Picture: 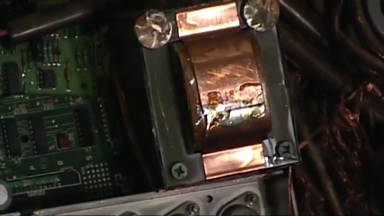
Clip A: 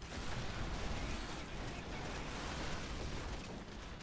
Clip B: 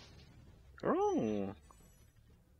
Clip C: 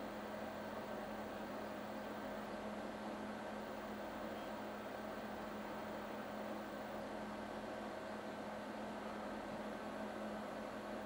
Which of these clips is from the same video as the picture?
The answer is C